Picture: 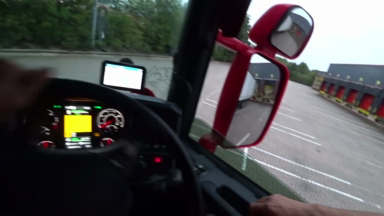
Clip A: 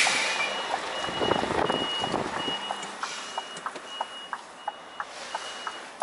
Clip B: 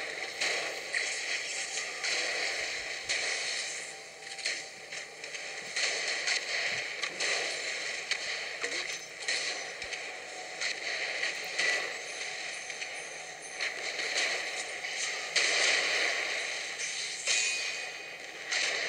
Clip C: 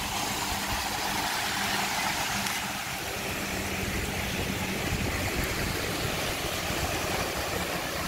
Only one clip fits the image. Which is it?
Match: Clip A